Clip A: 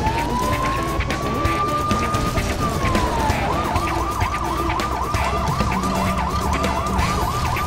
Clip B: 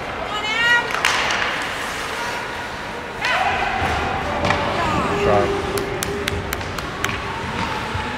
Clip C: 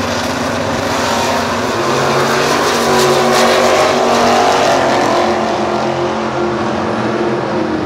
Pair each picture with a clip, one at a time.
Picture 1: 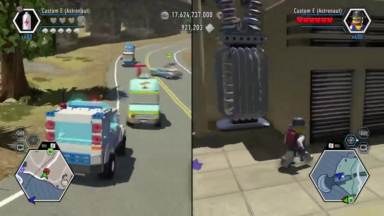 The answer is A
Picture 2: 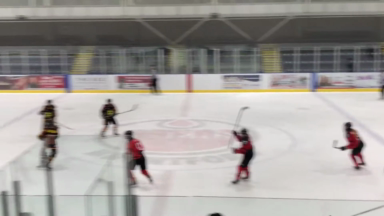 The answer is B